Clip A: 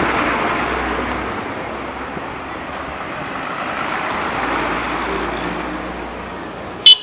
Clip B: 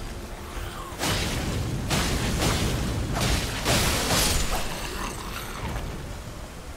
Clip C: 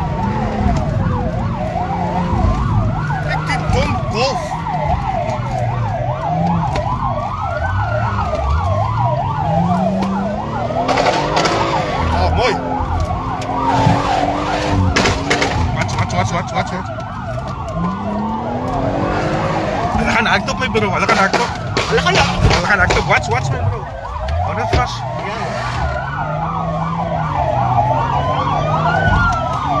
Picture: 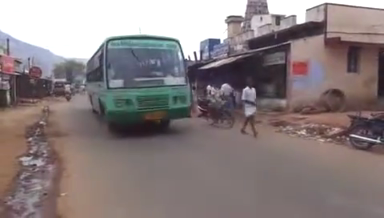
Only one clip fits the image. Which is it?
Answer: A